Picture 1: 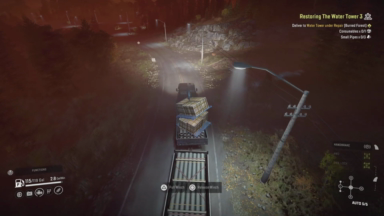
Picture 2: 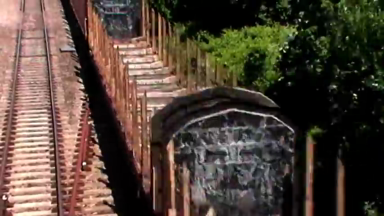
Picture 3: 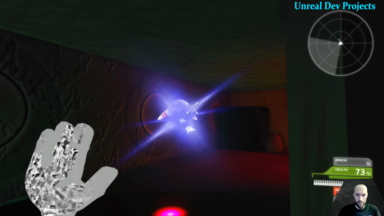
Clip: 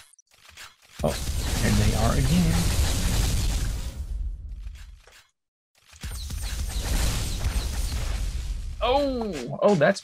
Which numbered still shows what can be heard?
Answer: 3